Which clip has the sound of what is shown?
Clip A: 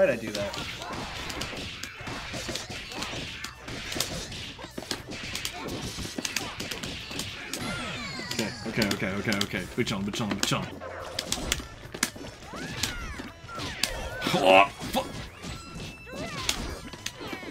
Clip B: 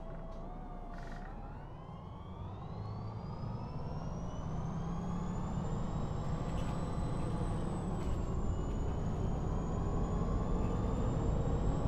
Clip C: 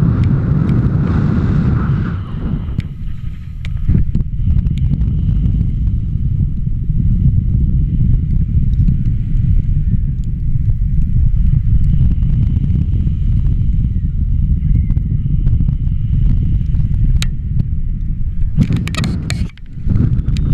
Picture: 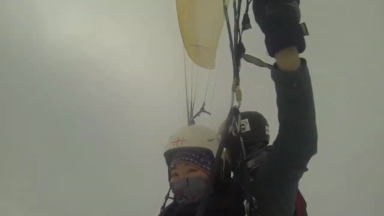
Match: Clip C